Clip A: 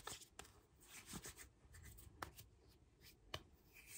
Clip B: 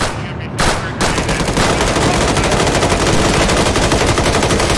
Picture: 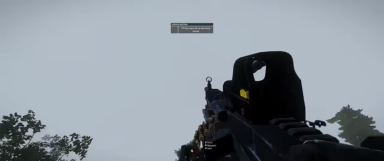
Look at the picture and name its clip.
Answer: B